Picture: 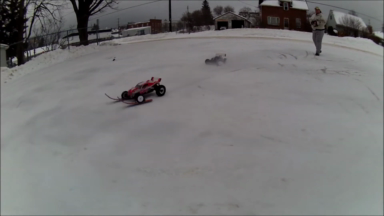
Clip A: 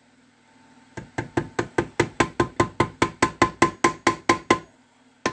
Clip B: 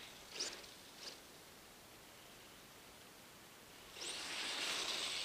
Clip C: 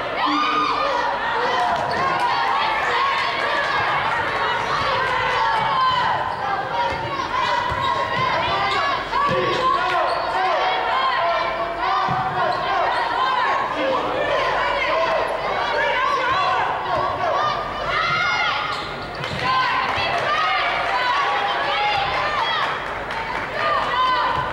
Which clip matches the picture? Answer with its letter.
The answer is B